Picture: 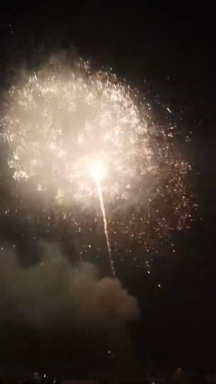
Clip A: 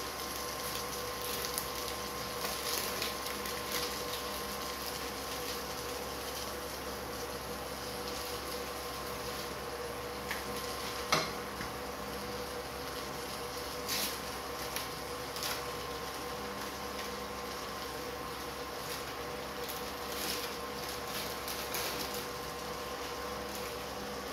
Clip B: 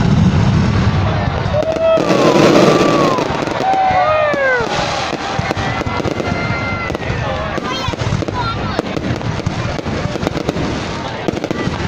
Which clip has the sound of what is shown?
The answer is B